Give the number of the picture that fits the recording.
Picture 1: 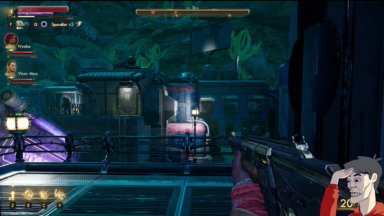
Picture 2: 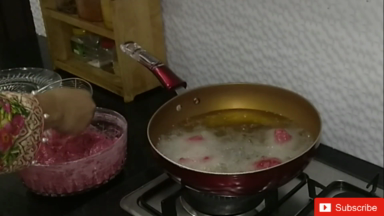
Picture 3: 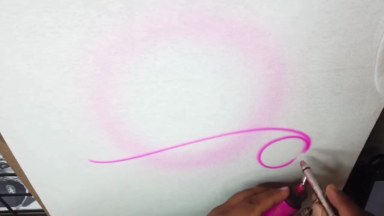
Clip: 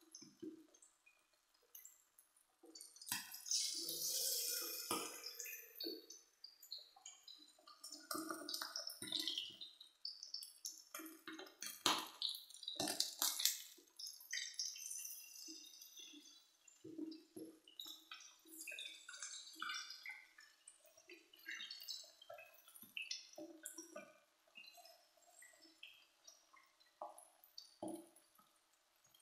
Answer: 2